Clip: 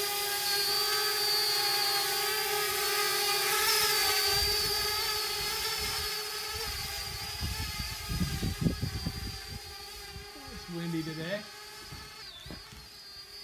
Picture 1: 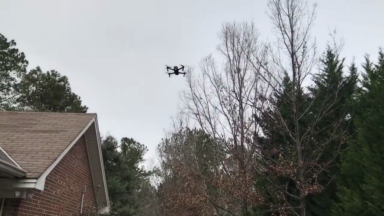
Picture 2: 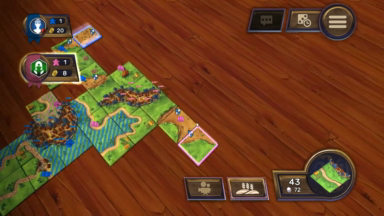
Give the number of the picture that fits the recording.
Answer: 1